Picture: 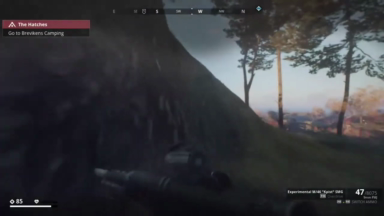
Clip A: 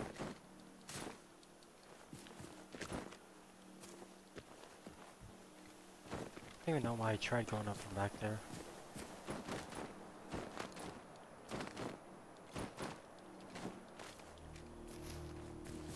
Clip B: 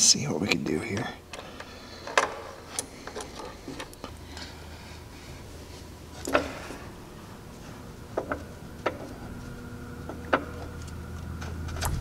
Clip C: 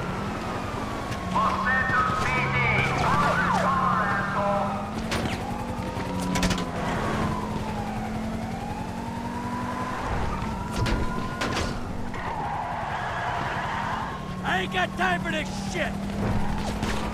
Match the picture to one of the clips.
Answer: A